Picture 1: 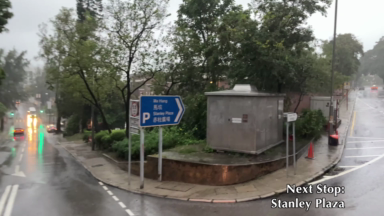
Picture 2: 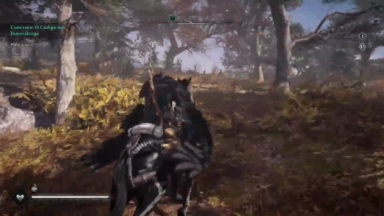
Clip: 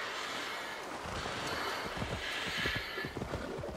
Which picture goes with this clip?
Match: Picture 2